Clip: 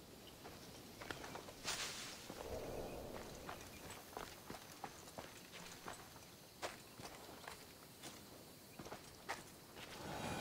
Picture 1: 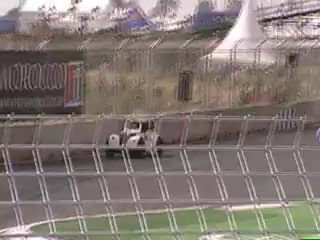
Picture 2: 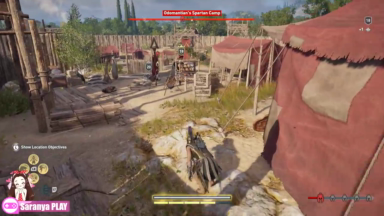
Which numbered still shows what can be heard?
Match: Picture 2